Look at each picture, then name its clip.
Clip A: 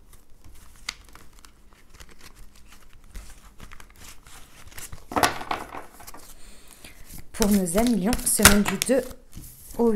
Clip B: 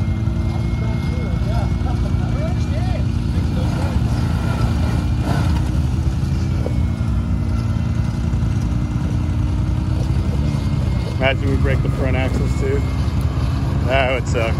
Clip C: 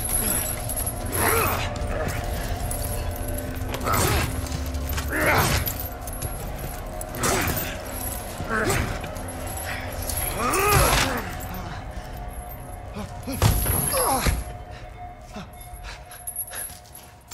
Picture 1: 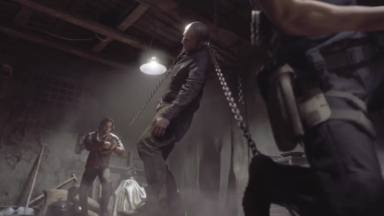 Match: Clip C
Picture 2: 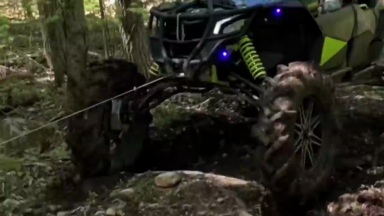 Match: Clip B